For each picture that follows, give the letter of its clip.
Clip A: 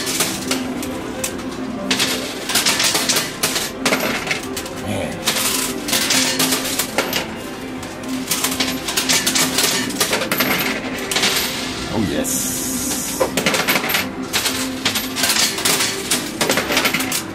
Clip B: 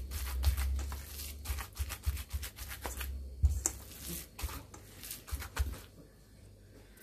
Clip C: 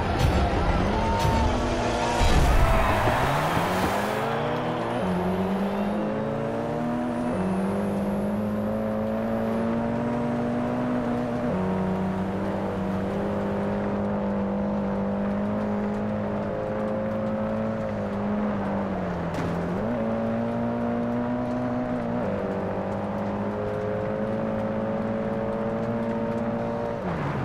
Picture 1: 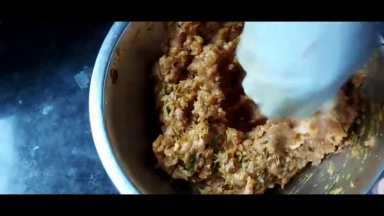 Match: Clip B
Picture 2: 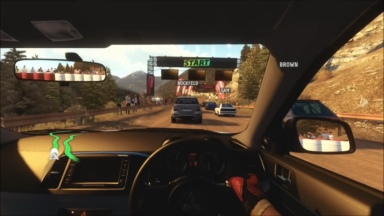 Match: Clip C